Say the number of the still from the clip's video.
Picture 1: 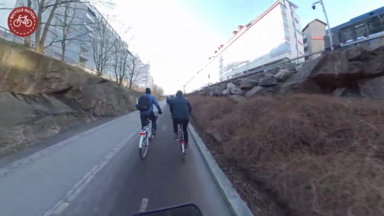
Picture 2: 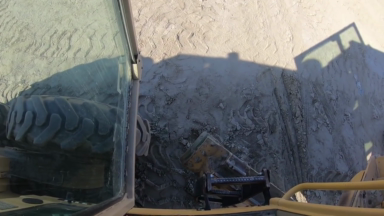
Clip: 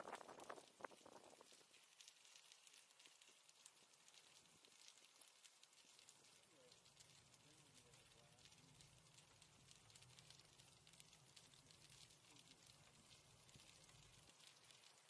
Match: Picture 1